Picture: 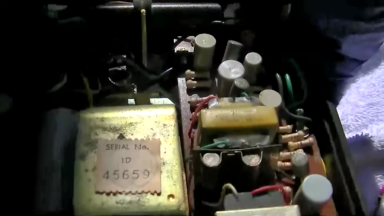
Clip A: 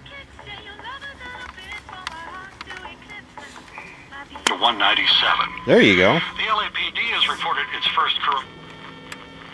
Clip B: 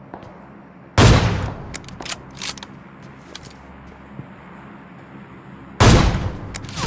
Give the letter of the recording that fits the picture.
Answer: A